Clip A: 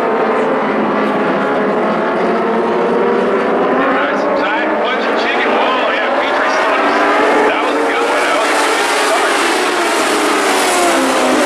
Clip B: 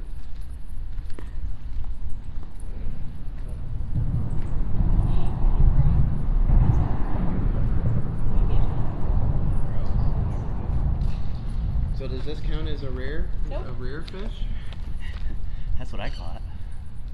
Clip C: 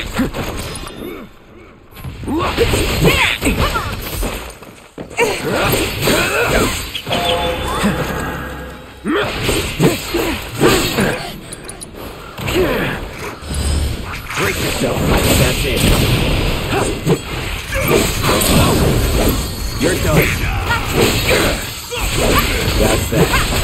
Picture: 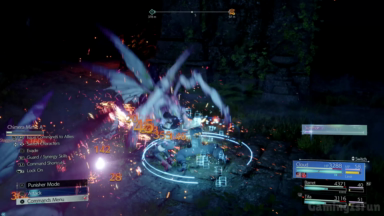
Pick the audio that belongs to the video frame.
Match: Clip C